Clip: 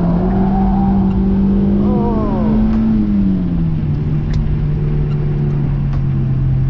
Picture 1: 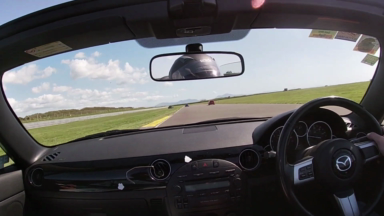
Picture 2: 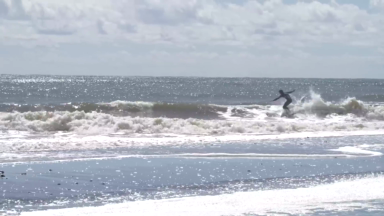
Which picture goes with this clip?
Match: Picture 1